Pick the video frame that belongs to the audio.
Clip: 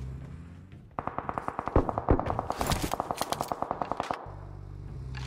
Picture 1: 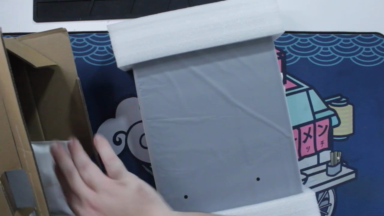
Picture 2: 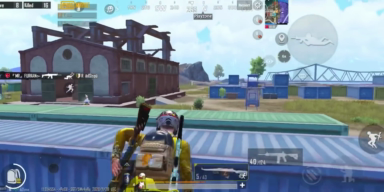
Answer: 2